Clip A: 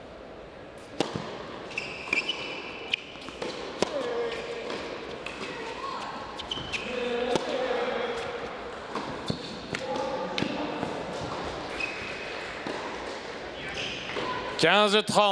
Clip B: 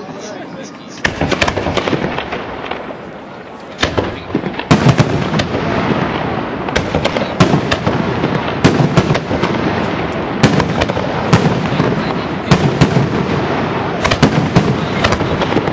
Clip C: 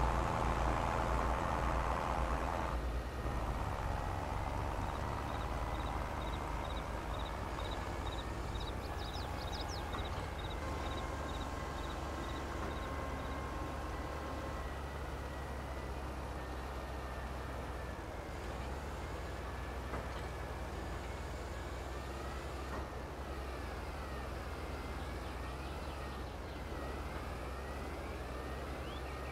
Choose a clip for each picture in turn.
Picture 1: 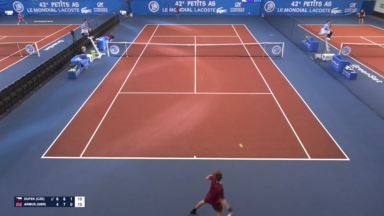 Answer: A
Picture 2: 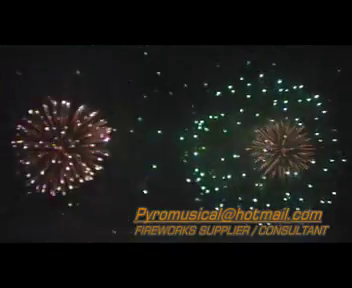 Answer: B